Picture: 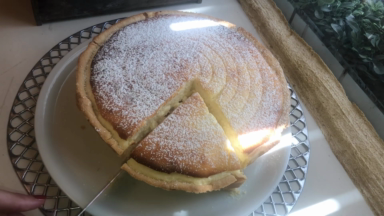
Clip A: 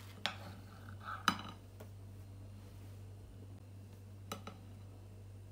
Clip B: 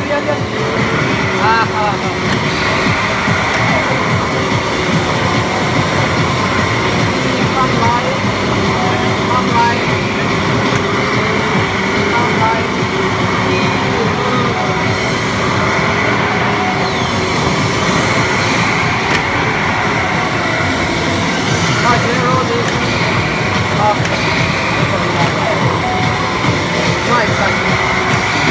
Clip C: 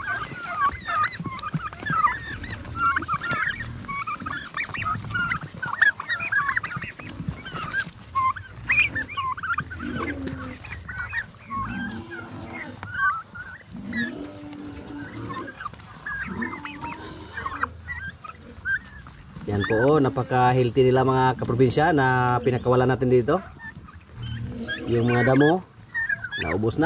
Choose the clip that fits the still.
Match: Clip A